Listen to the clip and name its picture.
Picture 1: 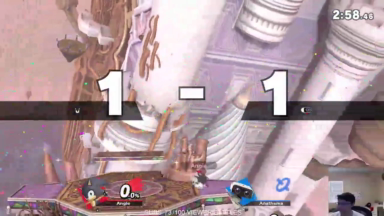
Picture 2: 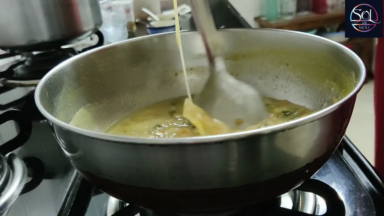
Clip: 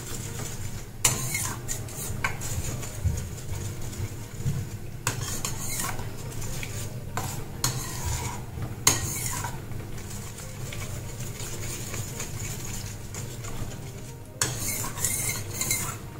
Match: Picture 2